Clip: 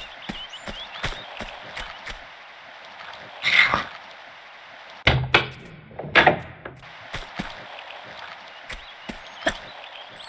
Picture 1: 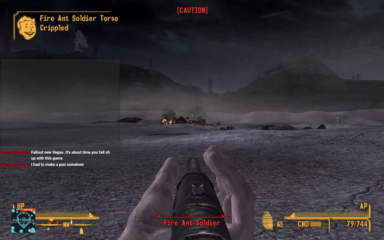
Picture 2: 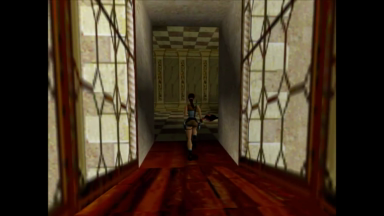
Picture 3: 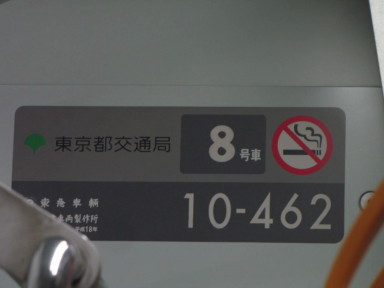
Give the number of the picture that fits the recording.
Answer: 2